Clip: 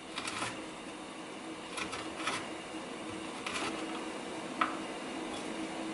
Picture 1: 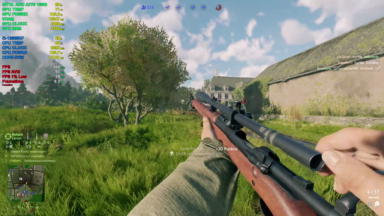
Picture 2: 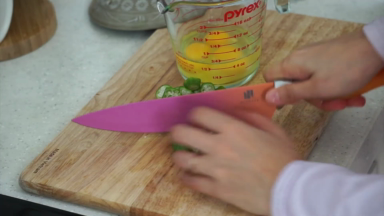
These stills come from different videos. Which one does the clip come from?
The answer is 2